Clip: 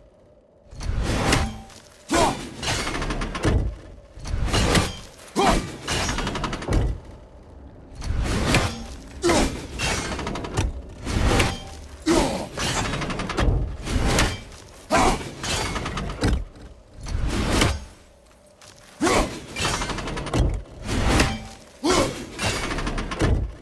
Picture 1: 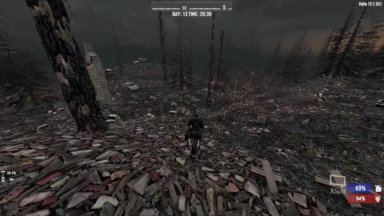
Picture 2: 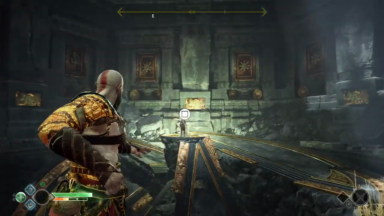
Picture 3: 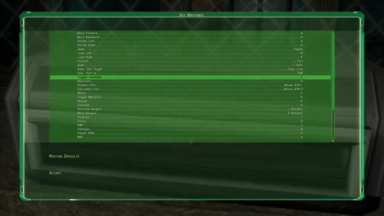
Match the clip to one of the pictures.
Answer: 2